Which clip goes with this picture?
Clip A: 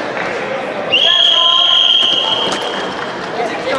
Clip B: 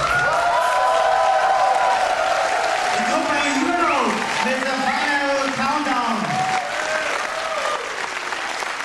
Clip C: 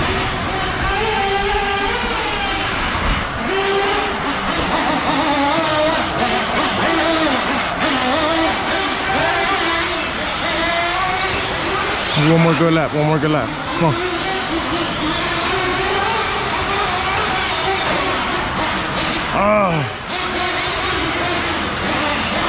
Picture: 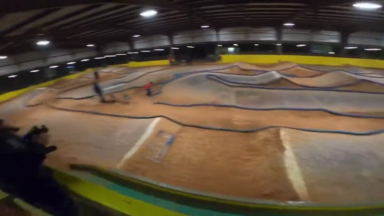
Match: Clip C